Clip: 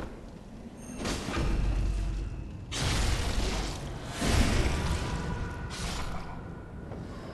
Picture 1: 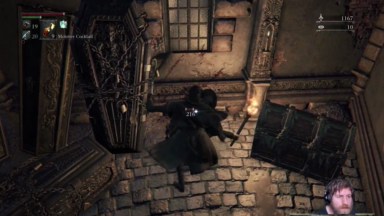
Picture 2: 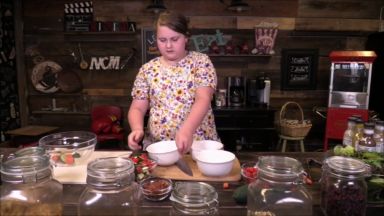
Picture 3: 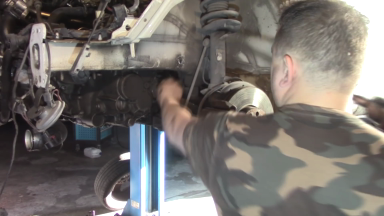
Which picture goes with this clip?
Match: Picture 1